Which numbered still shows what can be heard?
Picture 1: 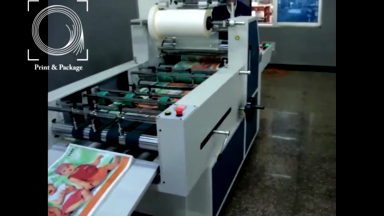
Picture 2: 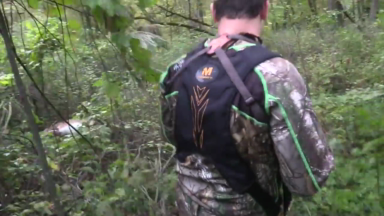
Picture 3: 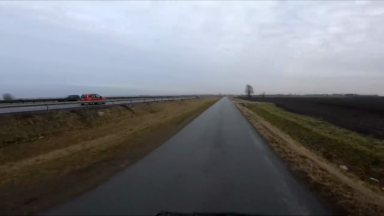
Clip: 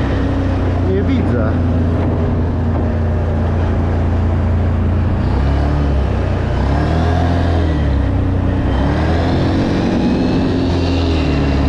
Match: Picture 3